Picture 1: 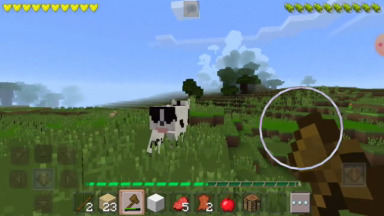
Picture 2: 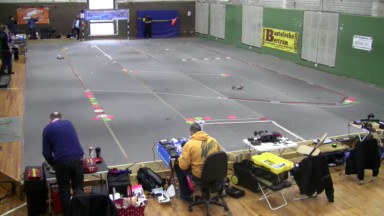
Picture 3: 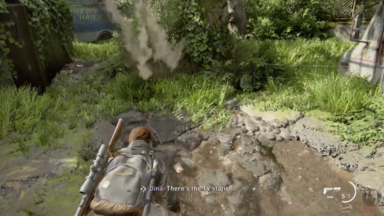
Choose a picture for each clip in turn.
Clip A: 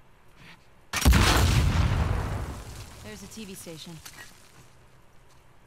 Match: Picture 3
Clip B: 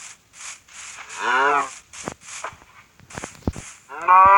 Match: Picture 1